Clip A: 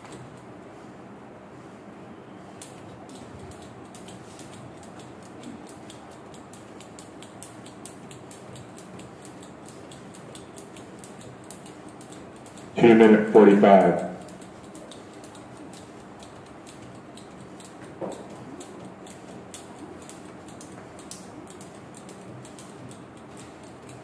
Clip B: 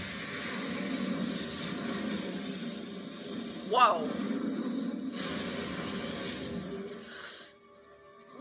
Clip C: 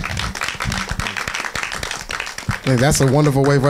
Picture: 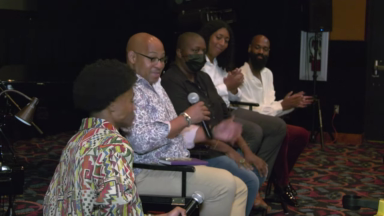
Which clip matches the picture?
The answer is C